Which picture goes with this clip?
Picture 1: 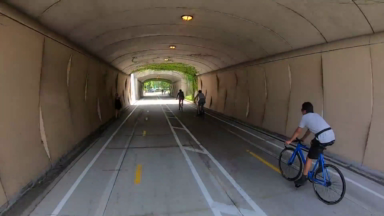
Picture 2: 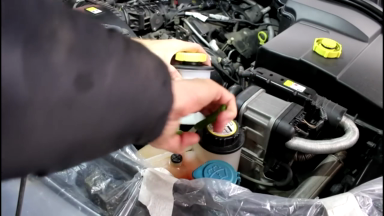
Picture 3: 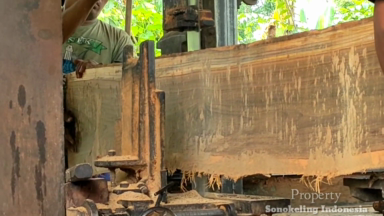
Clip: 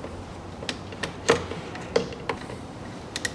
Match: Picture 2